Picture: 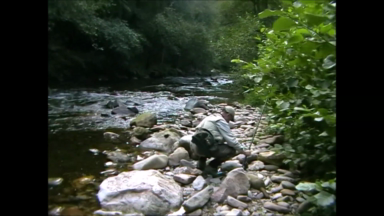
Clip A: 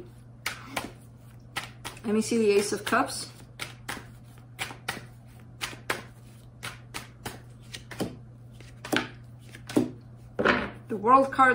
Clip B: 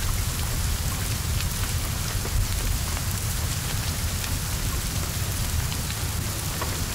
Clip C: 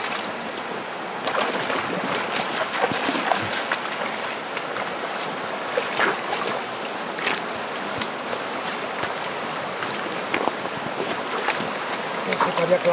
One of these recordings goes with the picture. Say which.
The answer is C